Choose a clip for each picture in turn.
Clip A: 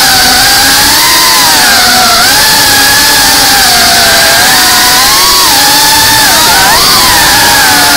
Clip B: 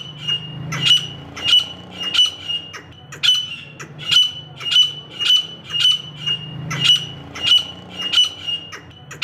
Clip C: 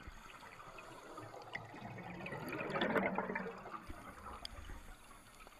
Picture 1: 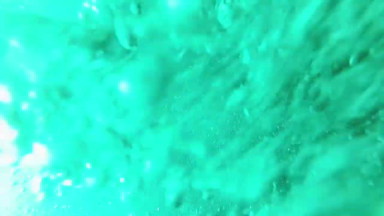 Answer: C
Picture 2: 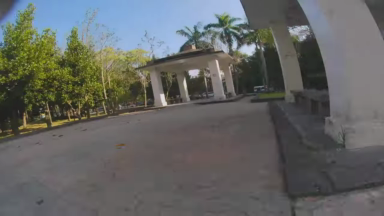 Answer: A